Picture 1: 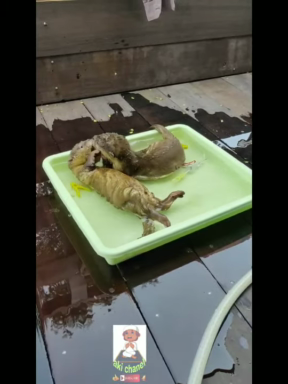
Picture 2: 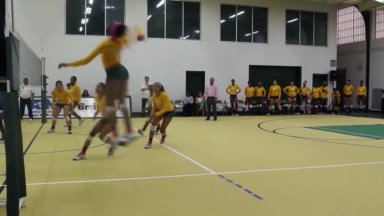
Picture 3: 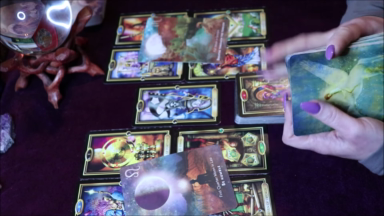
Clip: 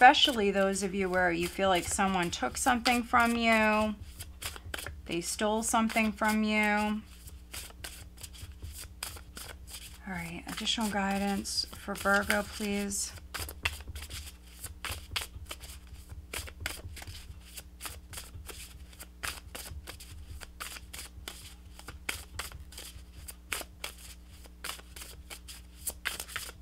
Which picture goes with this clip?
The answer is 3